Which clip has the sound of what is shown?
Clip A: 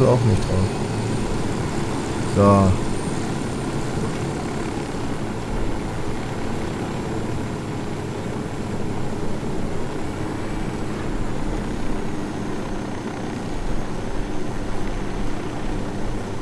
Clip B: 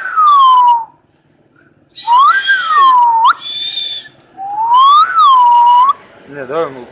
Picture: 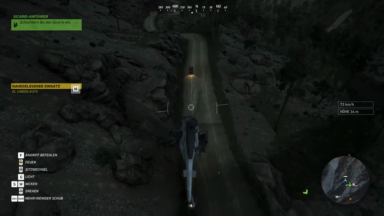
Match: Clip A